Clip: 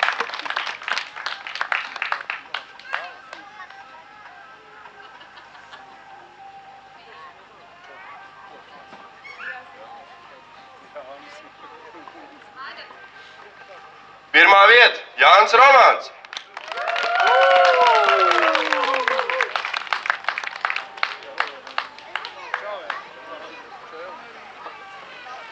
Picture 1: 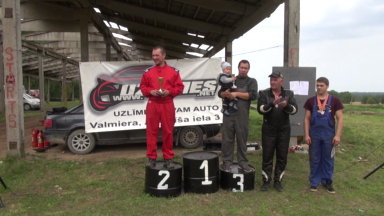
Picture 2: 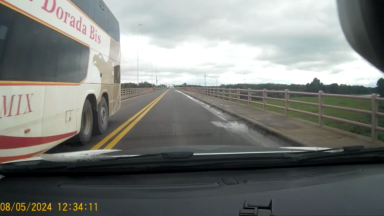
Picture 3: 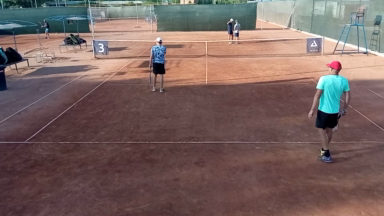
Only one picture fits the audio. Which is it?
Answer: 1